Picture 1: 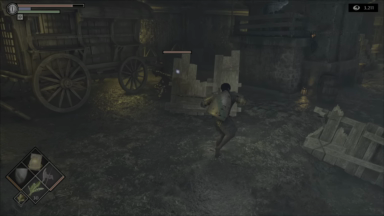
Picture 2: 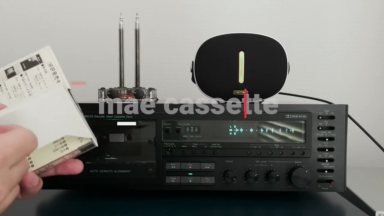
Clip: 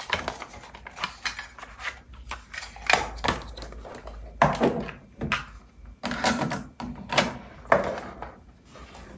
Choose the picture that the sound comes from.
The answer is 2